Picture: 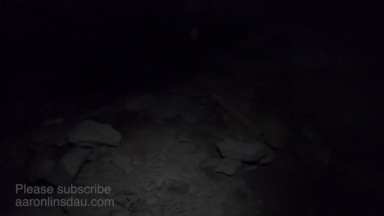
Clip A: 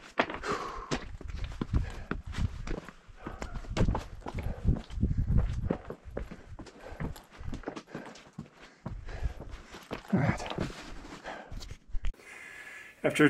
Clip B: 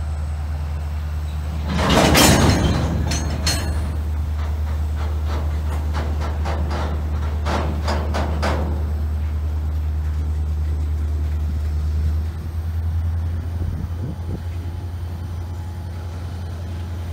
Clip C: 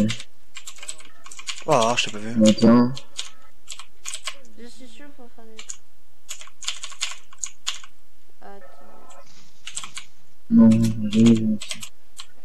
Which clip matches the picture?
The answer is A